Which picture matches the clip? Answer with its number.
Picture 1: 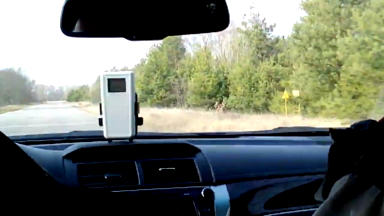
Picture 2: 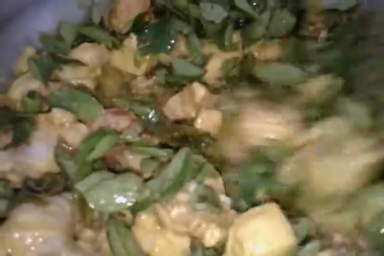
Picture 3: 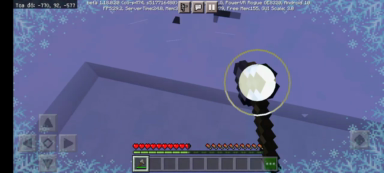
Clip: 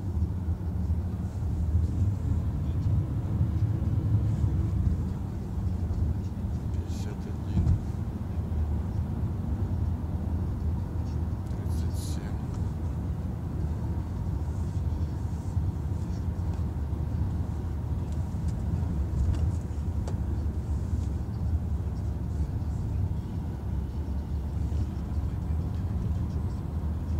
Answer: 1